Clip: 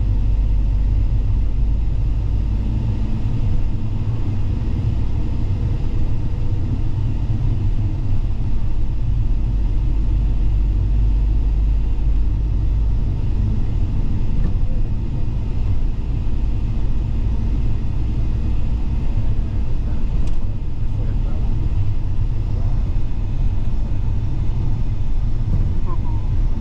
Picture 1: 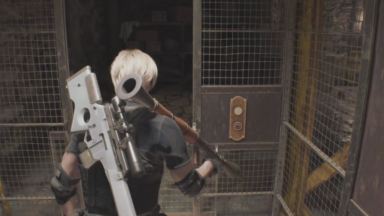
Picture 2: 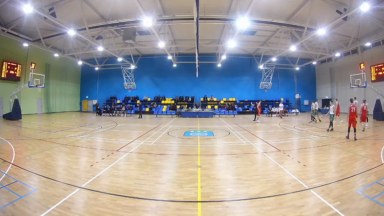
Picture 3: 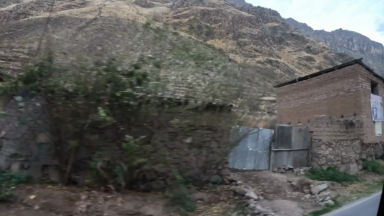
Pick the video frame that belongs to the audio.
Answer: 3